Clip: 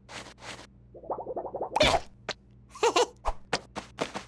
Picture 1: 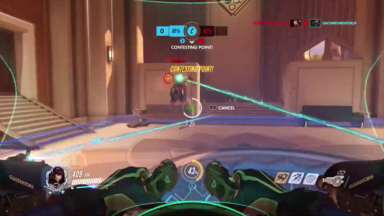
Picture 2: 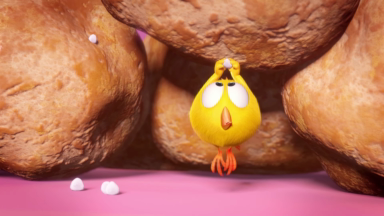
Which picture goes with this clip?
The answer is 2